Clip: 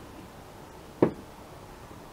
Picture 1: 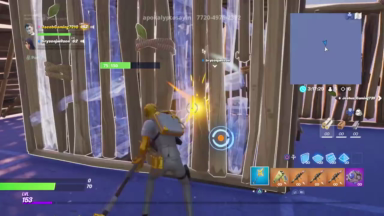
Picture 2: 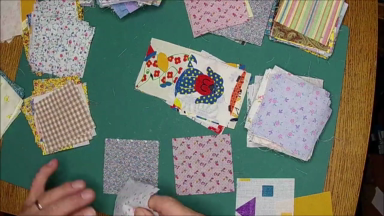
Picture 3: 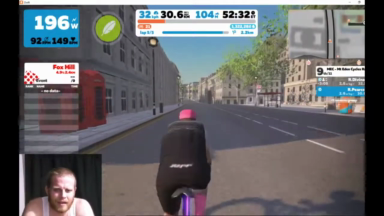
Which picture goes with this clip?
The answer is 2